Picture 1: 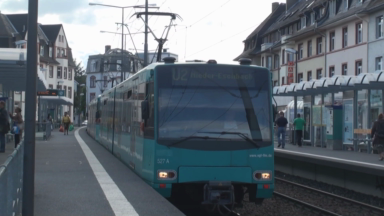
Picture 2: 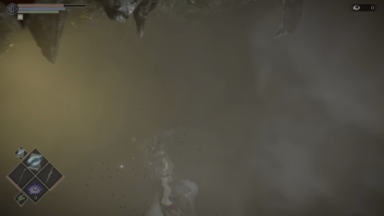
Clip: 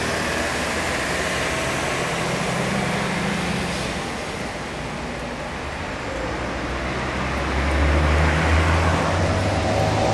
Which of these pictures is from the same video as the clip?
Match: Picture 1